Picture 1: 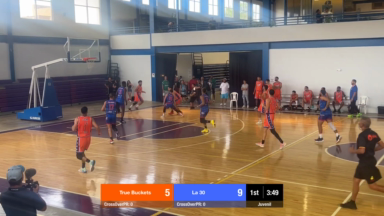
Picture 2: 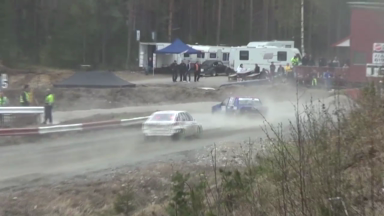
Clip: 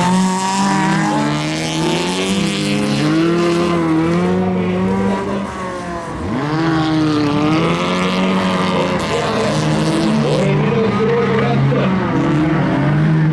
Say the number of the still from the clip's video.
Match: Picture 2